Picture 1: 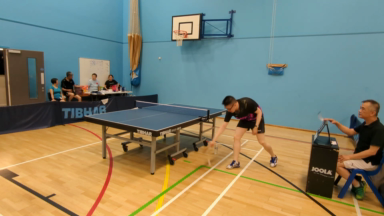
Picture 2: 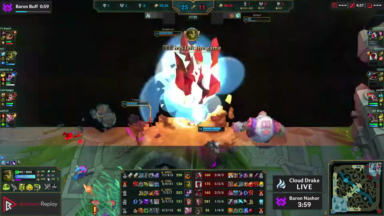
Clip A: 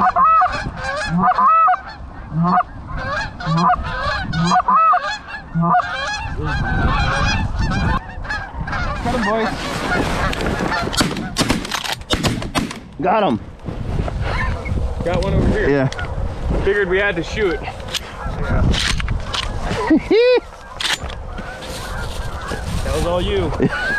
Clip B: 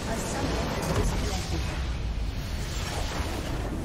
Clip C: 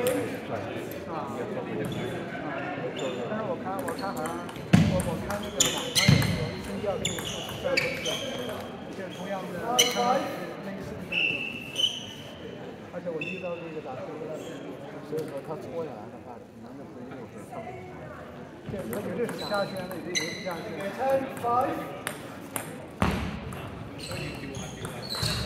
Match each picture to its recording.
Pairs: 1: C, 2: B